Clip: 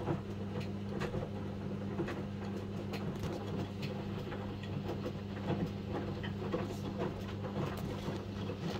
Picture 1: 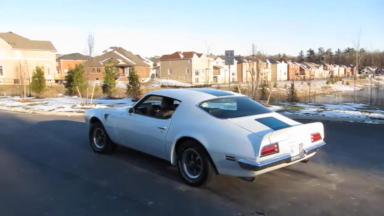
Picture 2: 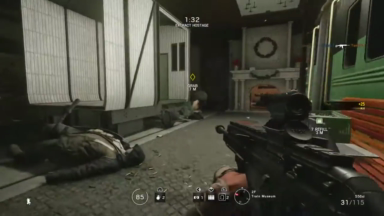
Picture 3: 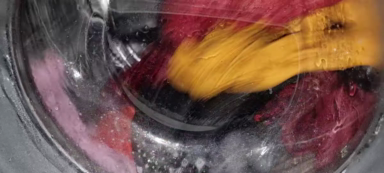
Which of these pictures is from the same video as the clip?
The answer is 3